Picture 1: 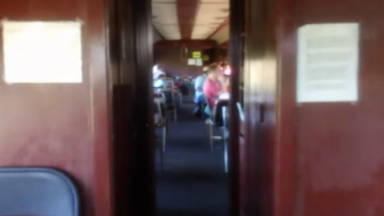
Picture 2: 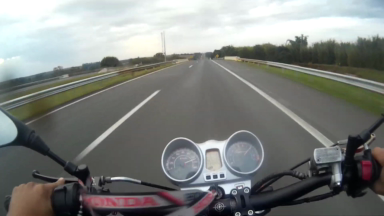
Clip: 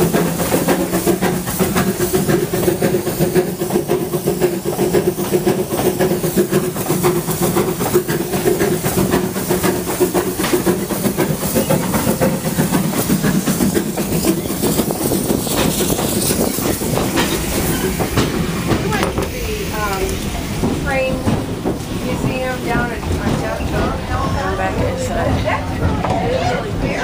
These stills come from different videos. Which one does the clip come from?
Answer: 1